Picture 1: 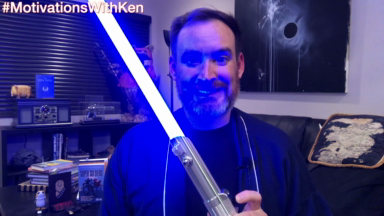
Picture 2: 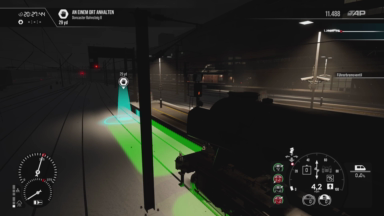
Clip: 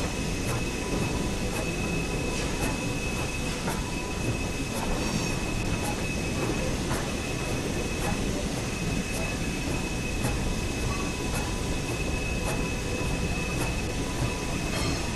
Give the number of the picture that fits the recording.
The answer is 2